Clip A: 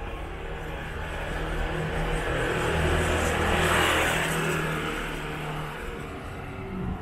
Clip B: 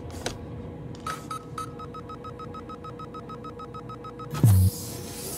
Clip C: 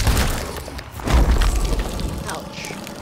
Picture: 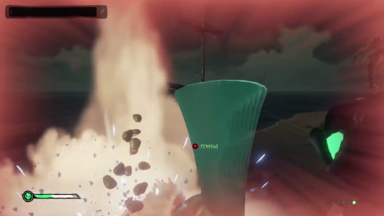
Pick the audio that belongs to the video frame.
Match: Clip C